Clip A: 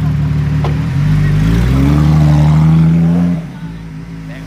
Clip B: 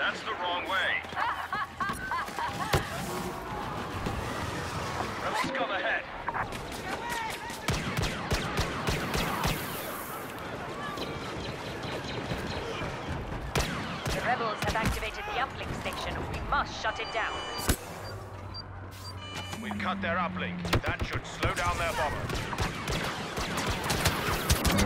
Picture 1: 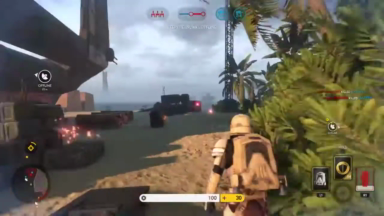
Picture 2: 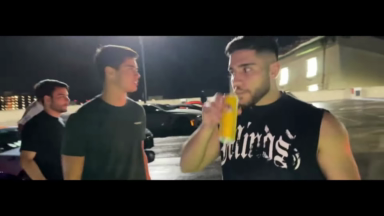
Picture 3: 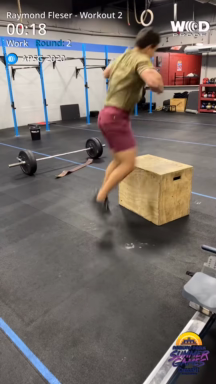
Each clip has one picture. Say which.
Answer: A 2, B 1